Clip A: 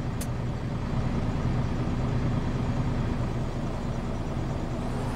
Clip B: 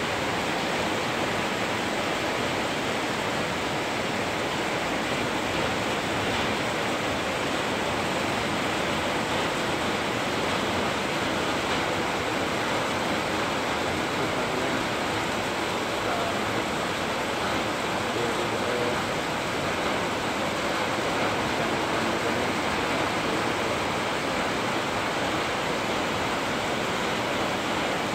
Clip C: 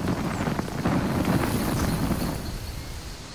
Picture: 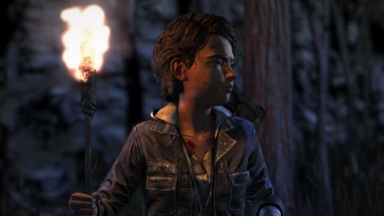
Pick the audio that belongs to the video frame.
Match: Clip C